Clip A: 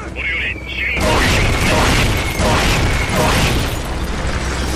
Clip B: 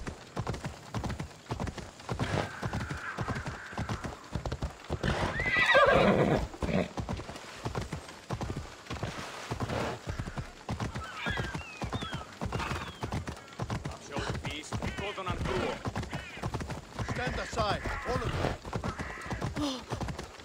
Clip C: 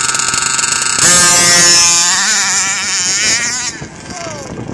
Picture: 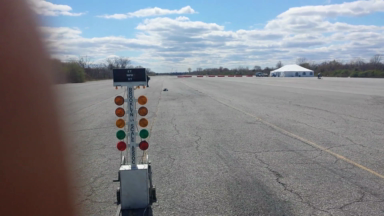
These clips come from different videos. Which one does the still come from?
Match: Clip C